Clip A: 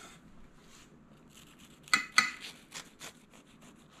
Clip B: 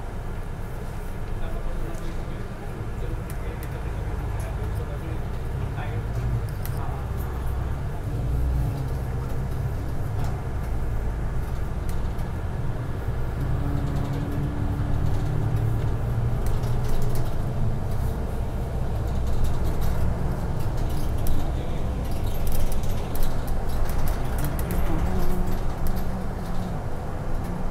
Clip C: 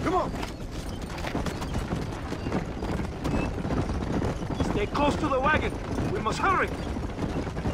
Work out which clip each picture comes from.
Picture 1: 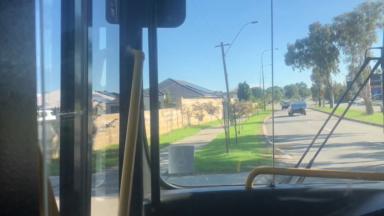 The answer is B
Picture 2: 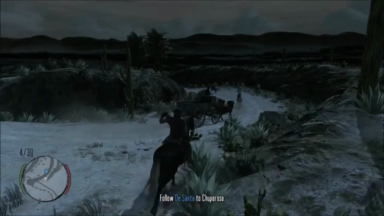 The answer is C